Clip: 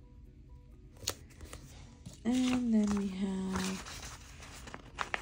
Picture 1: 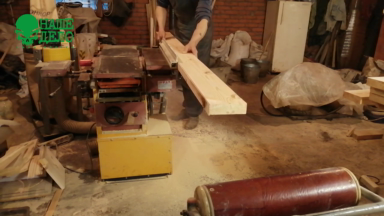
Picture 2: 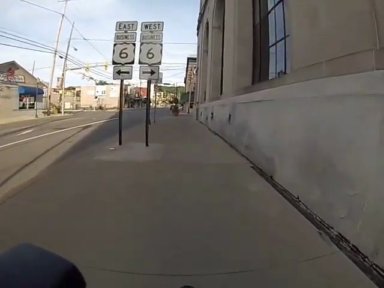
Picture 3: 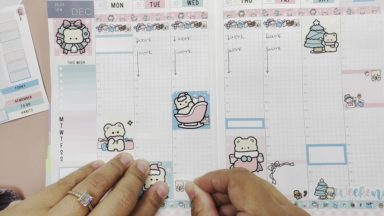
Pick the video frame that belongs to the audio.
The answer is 3